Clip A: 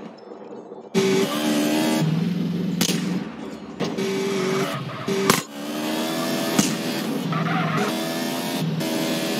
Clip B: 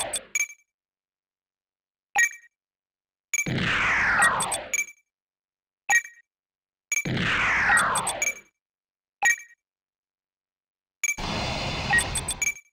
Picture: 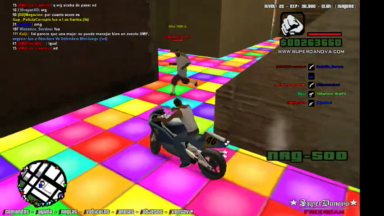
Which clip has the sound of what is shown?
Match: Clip A